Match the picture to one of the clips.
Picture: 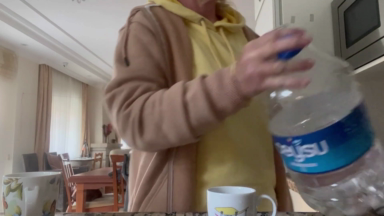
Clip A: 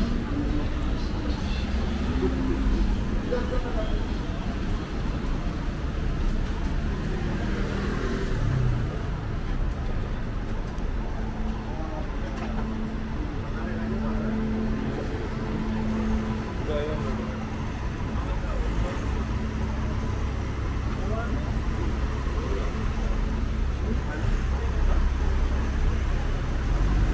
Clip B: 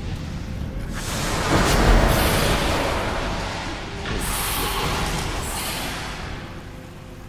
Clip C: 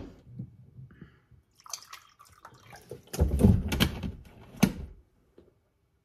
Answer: C